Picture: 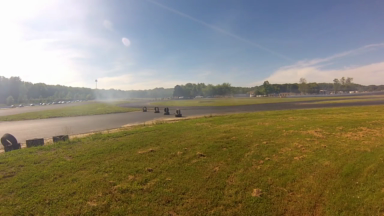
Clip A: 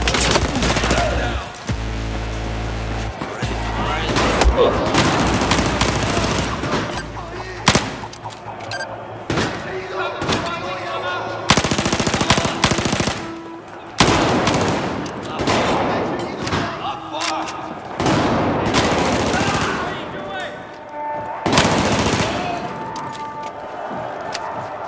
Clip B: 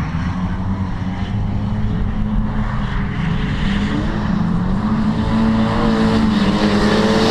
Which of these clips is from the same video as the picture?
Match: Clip B